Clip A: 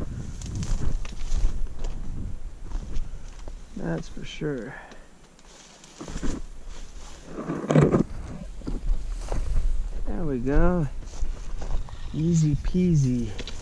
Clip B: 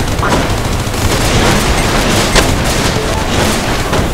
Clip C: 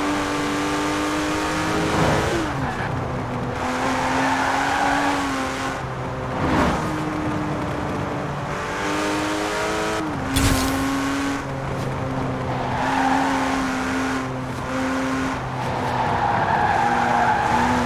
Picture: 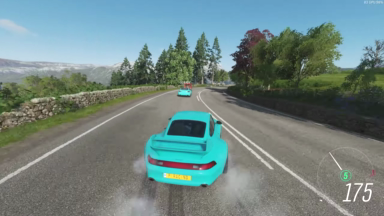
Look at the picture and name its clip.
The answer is C